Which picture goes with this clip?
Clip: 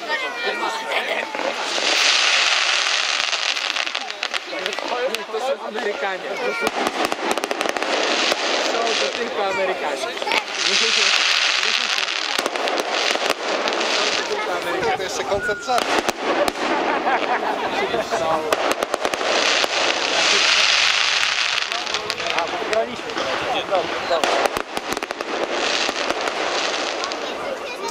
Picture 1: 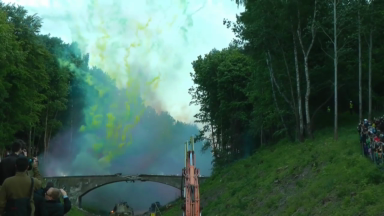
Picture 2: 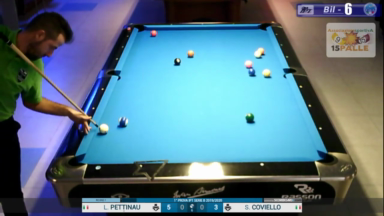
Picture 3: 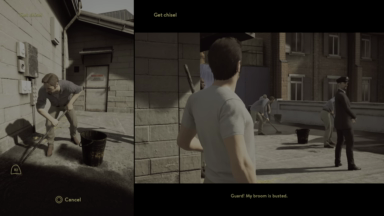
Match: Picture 1